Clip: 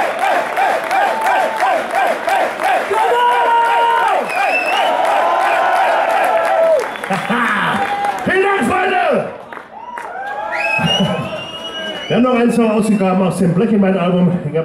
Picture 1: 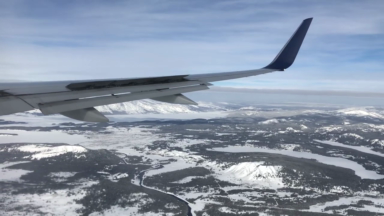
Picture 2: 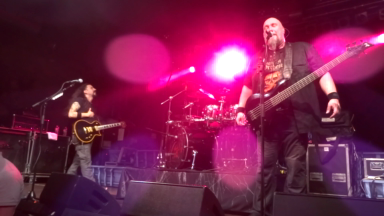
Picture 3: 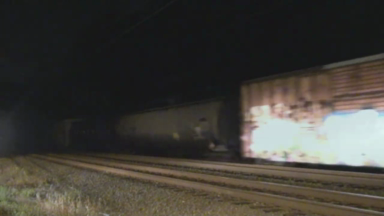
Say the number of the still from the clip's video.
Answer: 2